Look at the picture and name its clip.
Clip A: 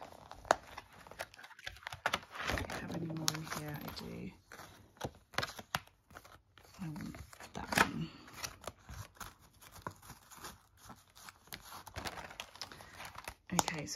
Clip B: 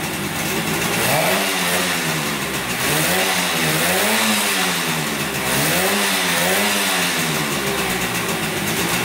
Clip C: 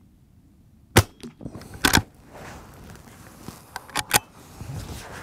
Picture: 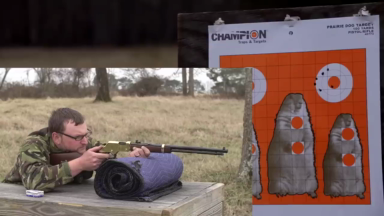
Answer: C